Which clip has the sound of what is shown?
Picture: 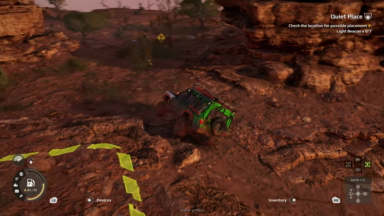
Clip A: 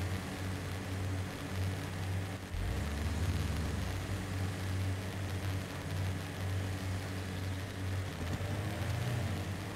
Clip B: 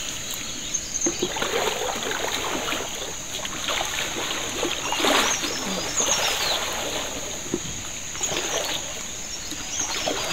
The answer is A